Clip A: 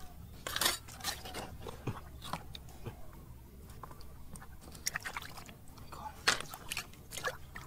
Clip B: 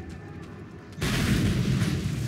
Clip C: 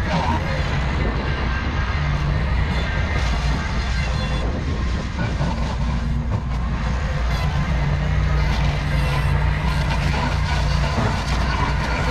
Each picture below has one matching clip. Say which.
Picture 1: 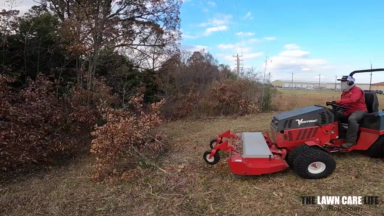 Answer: C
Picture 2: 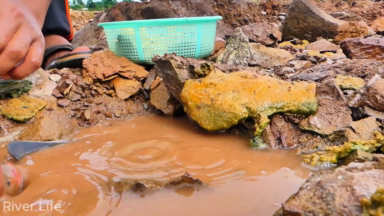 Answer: A